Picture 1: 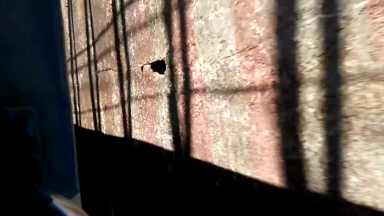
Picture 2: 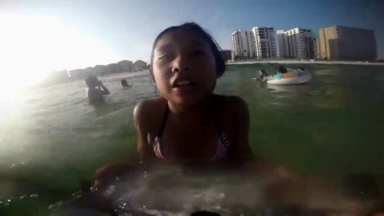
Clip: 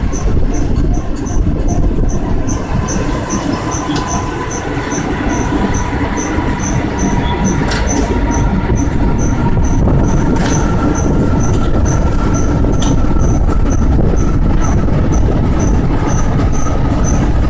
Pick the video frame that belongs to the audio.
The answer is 1